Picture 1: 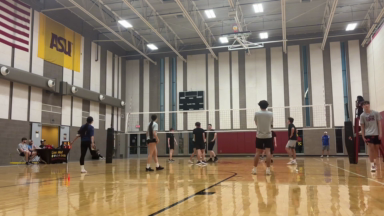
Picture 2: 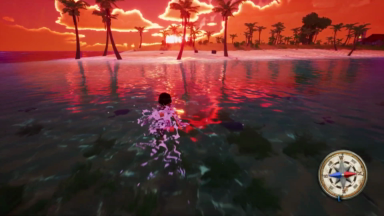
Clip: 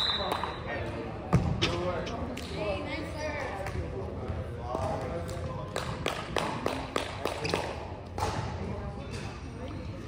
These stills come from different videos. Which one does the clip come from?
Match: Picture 1